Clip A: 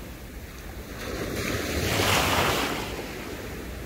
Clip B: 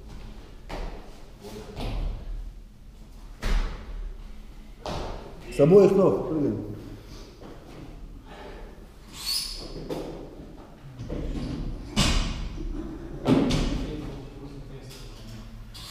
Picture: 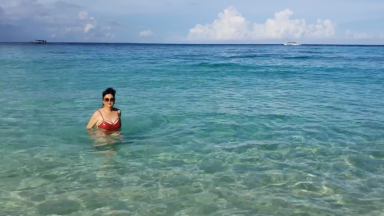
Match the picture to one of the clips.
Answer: A